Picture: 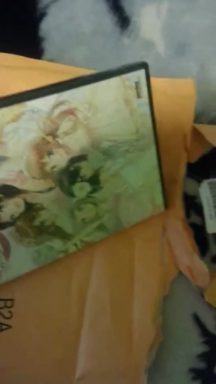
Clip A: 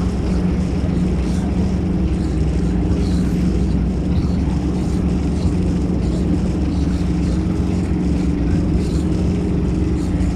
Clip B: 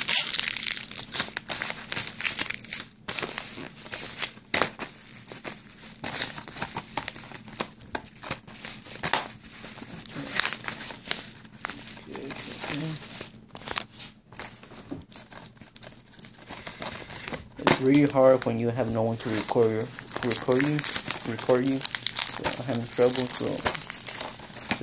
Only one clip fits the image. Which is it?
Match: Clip B